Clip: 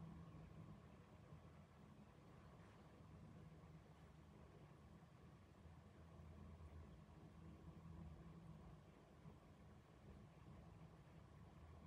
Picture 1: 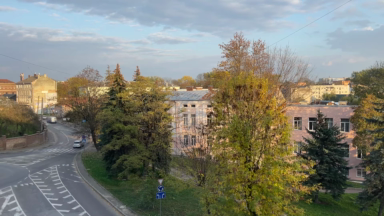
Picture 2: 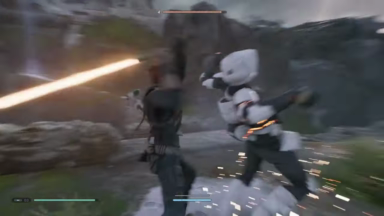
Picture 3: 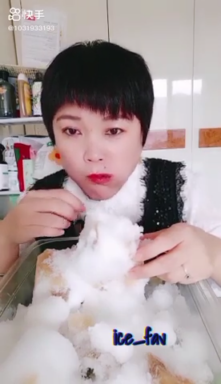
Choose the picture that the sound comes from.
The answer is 1